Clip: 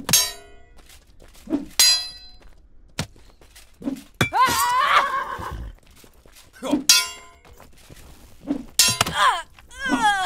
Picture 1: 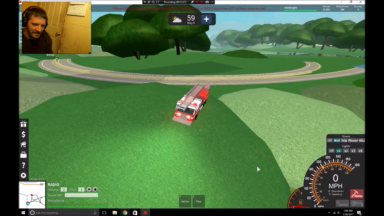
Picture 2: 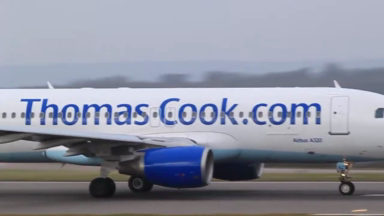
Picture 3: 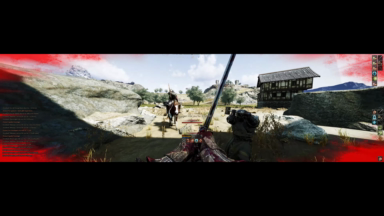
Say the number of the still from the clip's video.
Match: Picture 3